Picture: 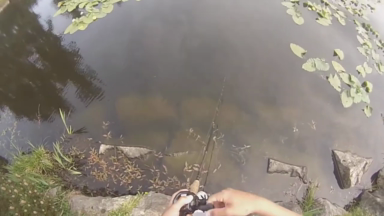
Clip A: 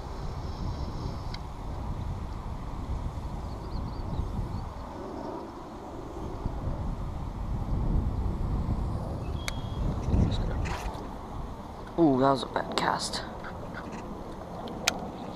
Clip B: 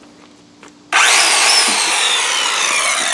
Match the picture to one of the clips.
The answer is A